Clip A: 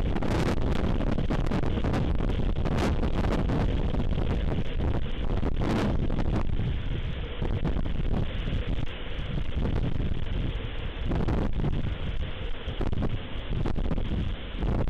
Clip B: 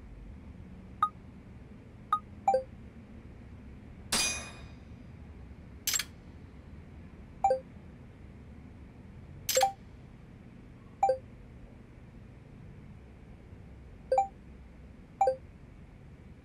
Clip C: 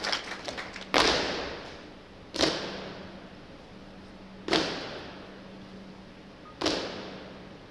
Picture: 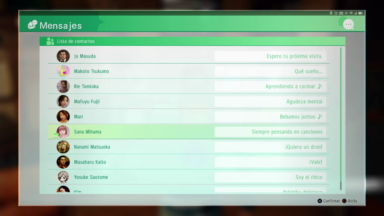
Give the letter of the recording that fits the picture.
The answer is B